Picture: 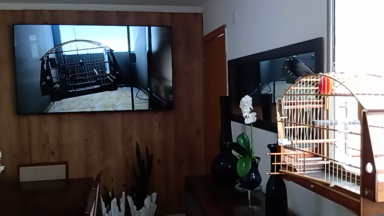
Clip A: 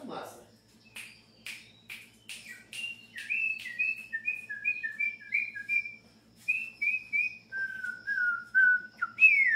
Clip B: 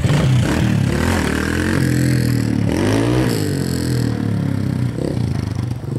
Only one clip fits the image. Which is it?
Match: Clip A